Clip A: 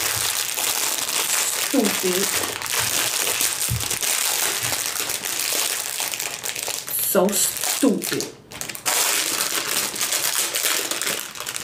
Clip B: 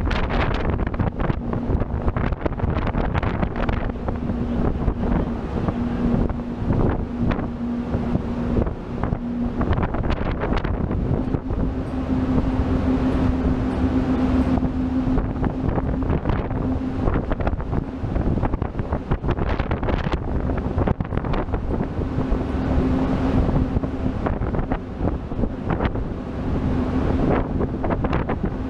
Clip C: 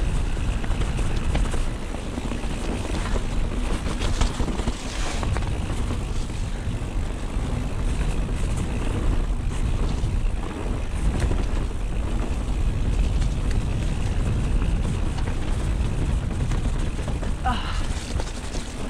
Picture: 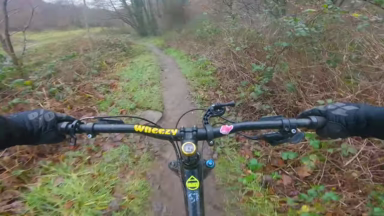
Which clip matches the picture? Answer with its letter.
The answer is C